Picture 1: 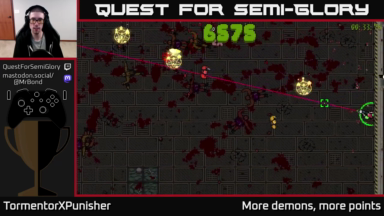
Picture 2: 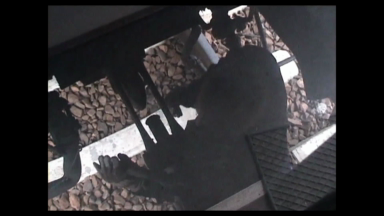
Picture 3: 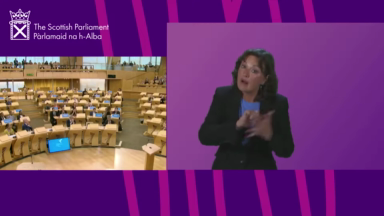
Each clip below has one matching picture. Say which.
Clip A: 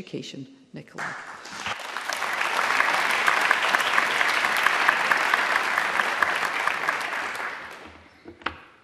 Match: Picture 3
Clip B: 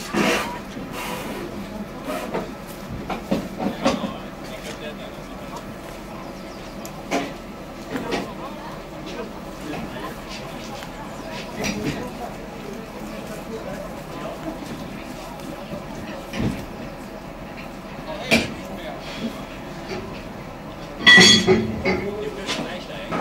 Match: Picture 2